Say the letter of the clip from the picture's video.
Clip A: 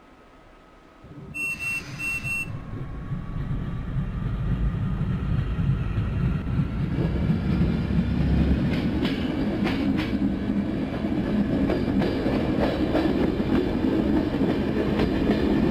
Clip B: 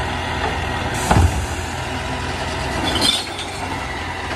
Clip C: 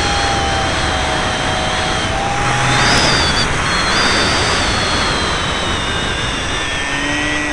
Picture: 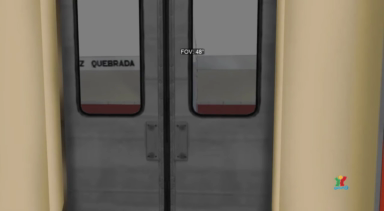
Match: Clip A